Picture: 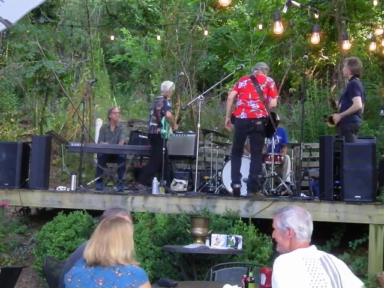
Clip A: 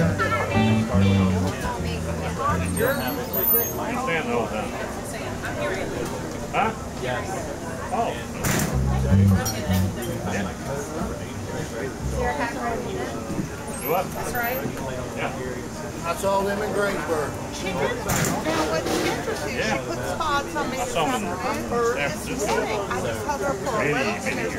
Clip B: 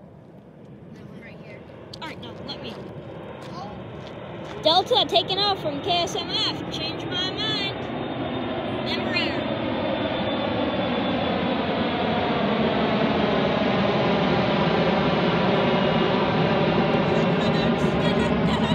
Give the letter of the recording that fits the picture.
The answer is A